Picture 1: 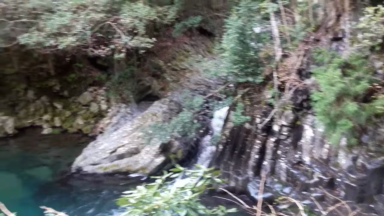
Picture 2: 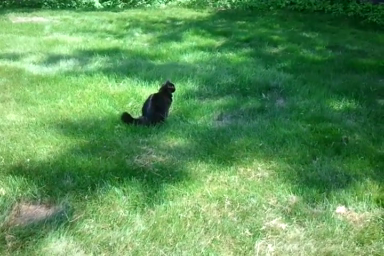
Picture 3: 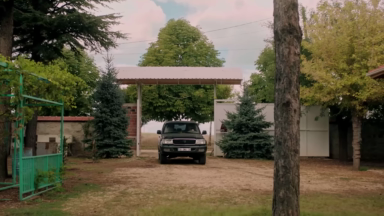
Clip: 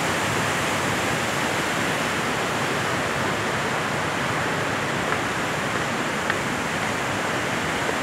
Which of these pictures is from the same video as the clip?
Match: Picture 1